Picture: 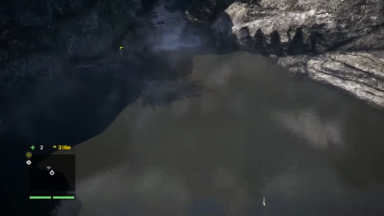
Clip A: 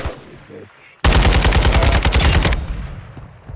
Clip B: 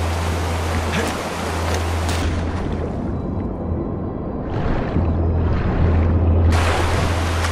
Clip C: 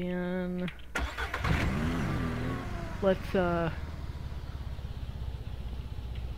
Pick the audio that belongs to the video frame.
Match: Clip B